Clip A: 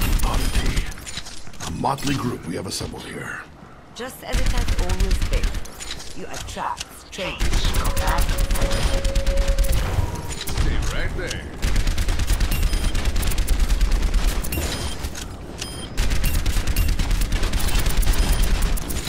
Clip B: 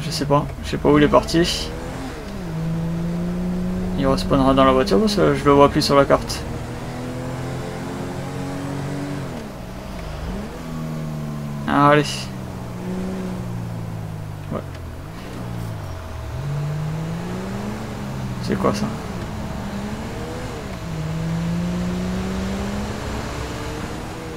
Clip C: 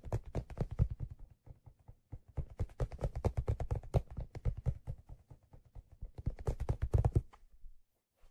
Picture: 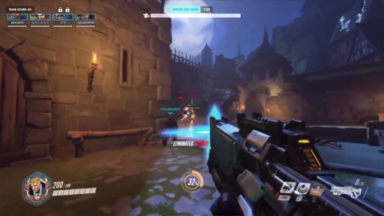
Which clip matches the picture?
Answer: A